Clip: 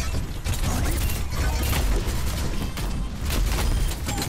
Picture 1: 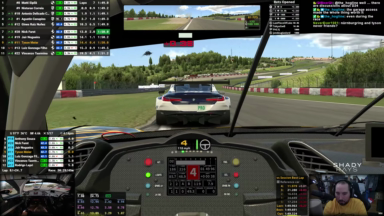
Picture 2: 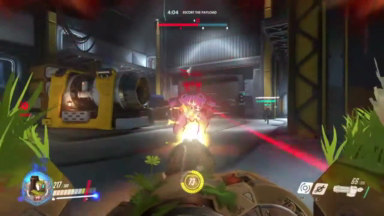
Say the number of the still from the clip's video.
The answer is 2